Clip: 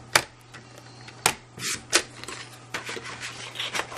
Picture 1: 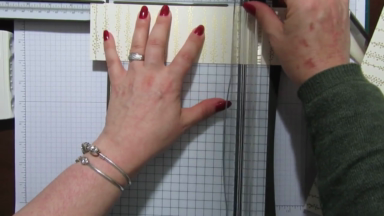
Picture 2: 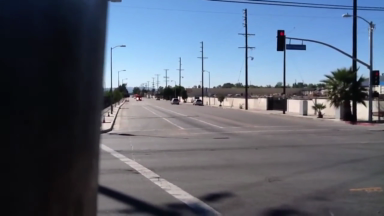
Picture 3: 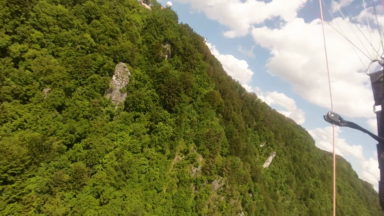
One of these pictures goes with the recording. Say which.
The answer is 1